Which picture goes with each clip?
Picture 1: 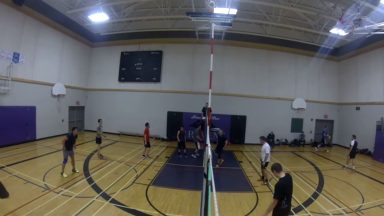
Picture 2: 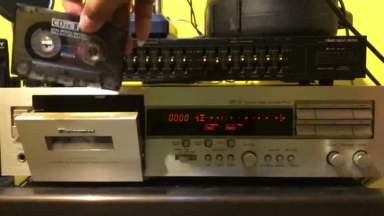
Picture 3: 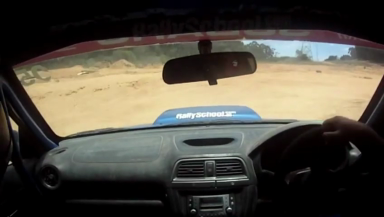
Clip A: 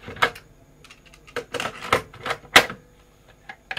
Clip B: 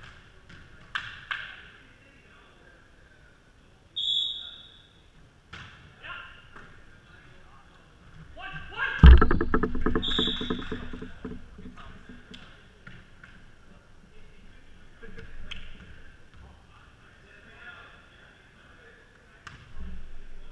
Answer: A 2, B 1